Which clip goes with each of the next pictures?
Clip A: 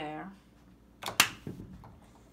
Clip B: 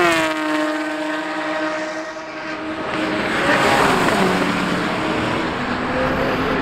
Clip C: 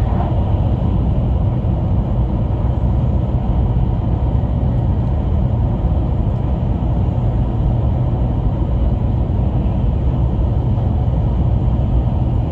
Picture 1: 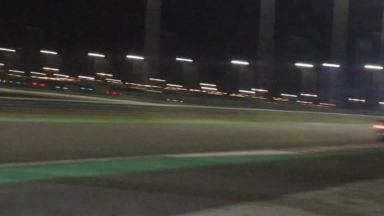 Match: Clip B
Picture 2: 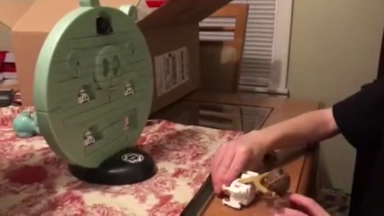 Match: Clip A